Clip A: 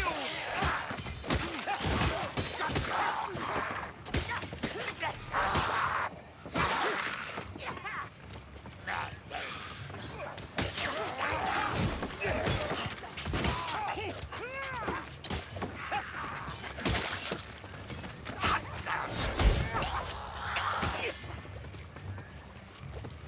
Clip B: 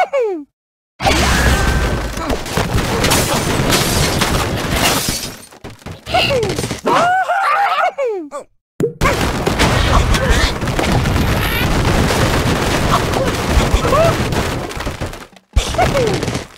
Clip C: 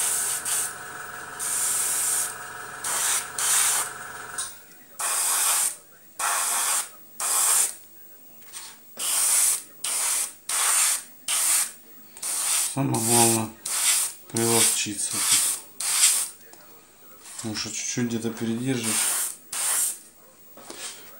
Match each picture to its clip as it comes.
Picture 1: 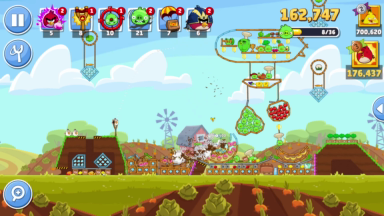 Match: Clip B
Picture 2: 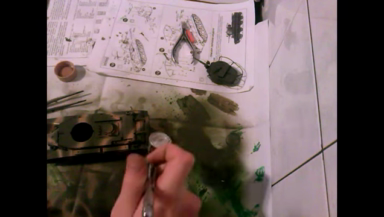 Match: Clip C